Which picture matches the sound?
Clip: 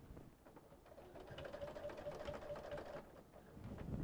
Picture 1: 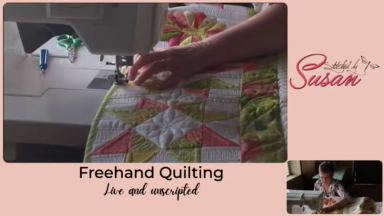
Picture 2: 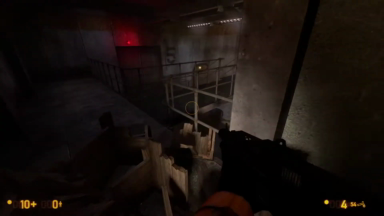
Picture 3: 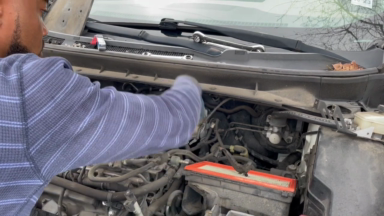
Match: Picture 1